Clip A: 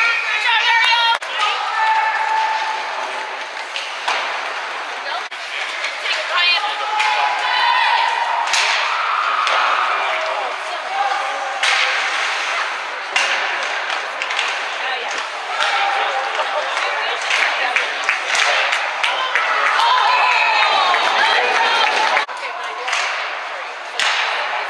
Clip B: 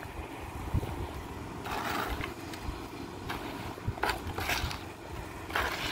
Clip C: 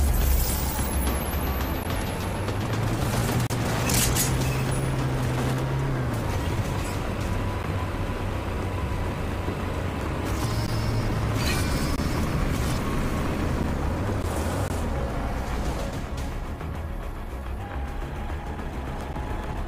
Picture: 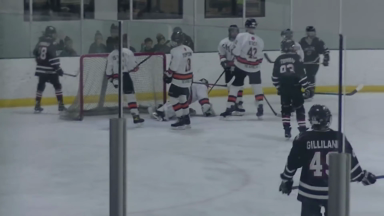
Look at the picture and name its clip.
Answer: A